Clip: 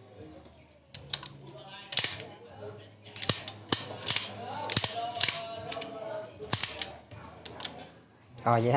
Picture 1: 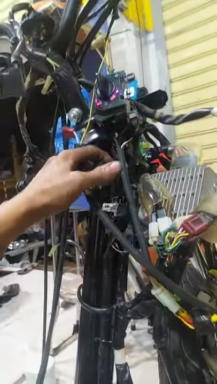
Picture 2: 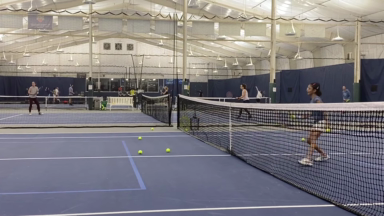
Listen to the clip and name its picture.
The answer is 1